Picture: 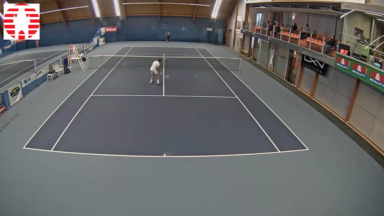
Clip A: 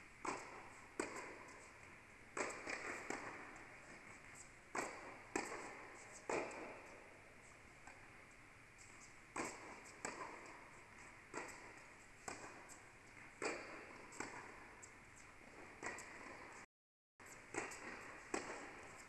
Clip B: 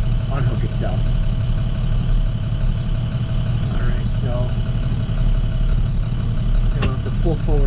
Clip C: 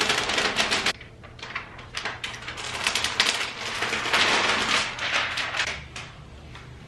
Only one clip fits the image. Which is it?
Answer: A